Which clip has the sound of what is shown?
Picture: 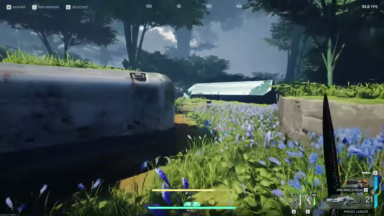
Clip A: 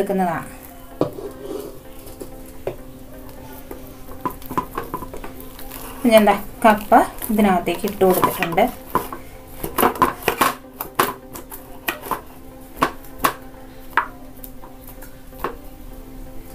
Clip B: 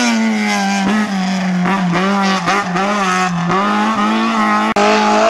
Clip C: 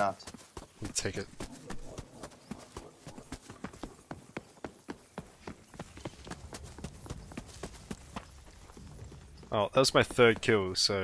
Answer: C